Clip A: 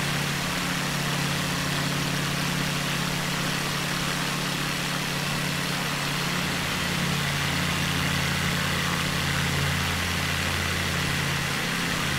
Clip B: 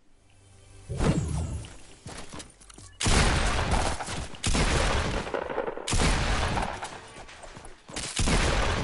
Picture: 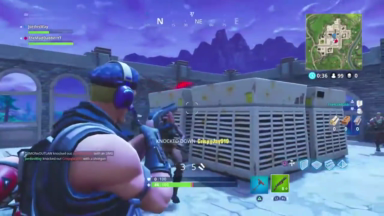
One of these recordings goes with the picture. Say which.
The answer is B